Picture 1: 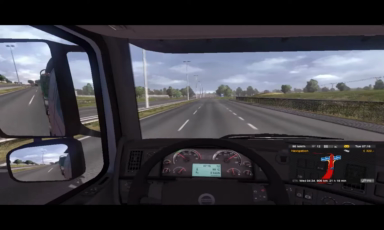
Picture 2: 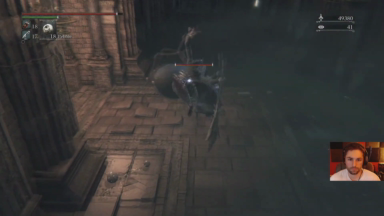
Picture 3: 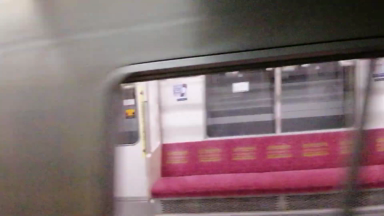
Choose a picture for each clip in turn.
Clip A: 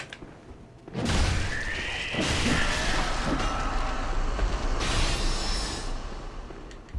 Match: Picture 2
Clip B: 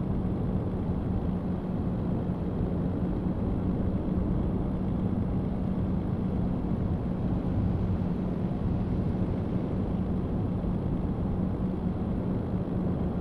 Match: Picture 1